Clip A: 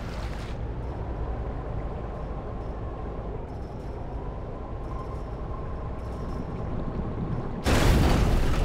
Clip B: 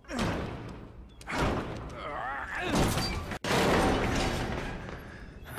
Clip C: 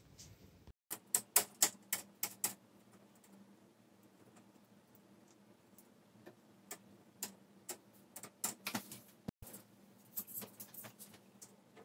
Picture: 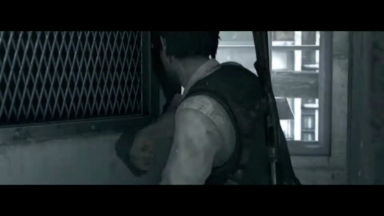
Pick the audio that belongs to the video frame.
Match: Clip B